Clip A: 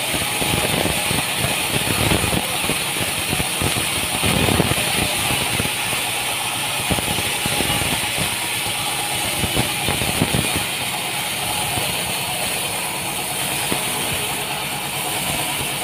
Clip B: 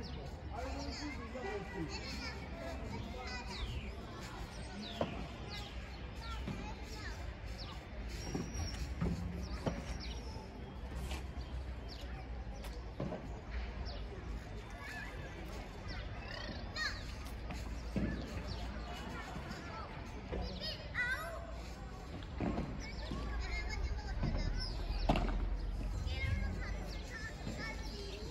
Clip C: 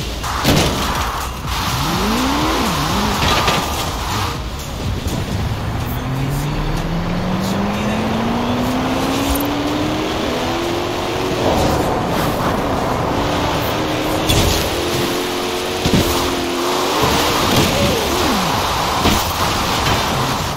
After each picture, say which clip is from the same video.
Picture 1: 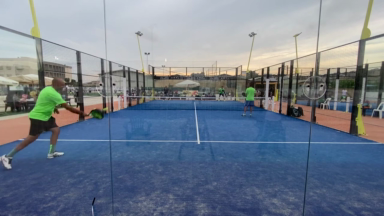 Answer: B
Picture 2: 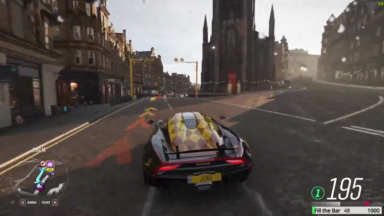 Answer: C